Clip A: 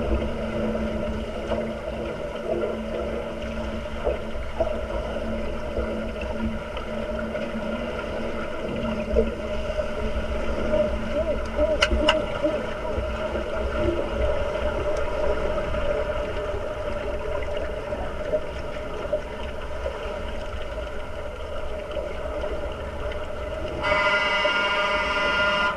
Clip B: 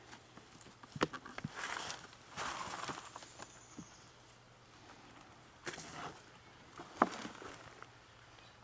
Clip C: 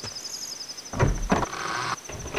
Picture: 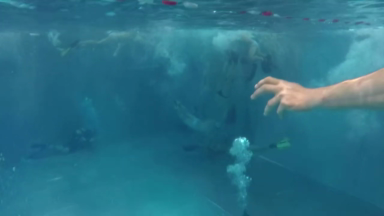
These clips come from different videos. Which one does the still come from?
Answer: A